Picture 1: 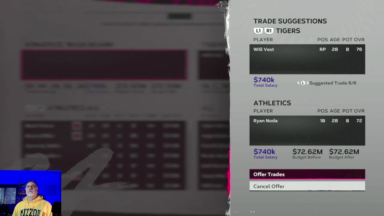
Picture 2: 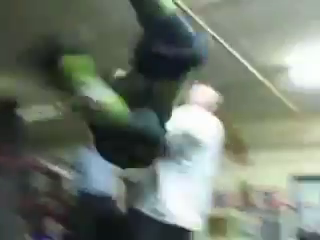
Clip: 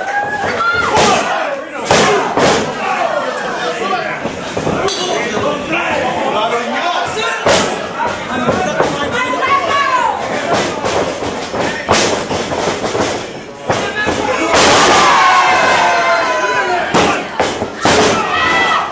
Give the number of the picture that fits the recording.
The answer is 2